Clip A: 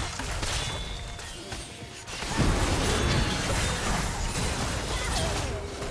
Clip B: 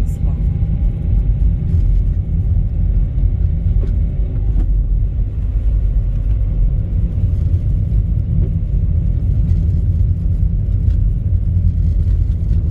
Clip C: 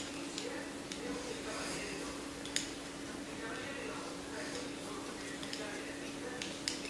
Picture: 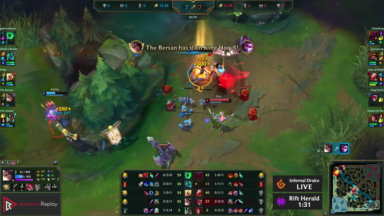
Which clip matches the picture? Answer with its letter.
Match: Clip A